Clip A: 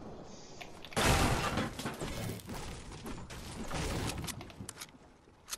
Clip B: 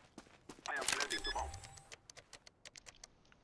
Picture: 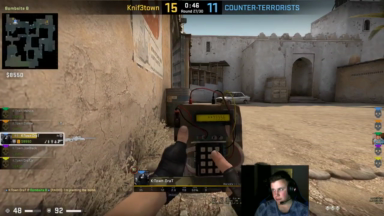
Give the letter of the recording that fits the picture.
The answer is B